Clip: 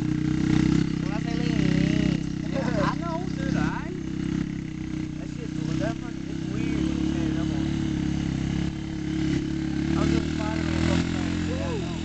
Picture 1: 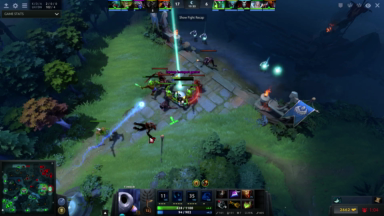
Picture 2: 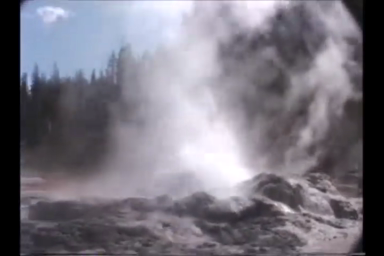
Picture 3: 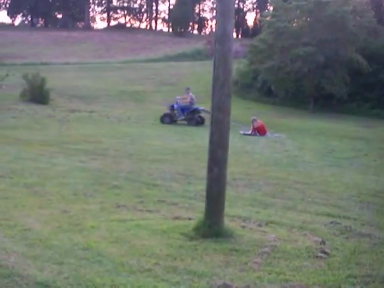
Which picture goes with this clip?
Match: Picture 3